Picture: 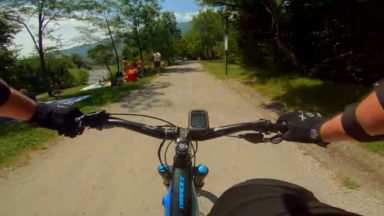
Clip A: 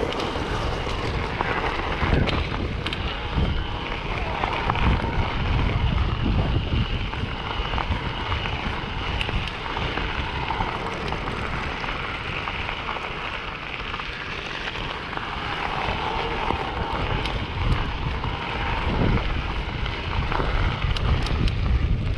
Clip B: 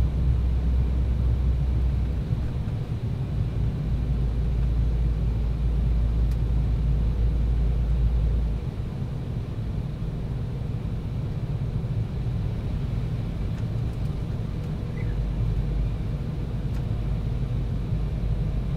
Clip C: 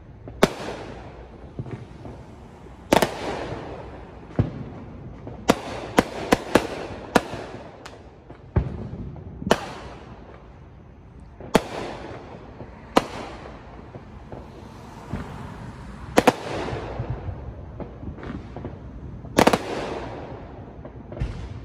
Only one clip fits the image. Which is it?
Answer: A